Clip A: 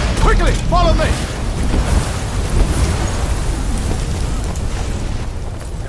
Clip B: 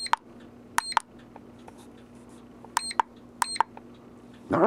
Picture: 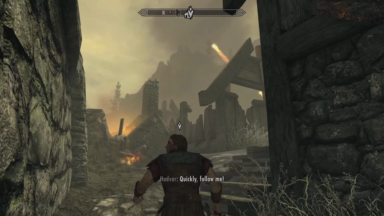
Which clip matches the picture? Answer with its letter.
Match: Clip A